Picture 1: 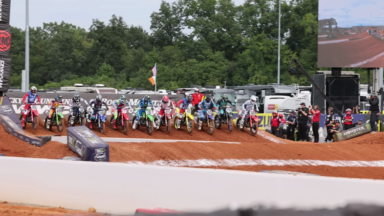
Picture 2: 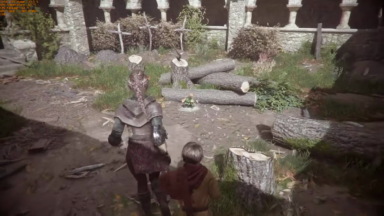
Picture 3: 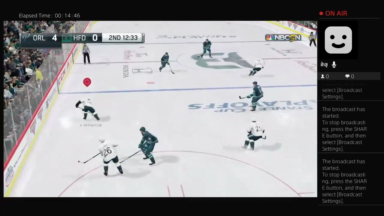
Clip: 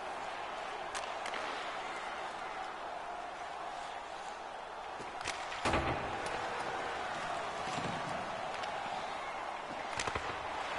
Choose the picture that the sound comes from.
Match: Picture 3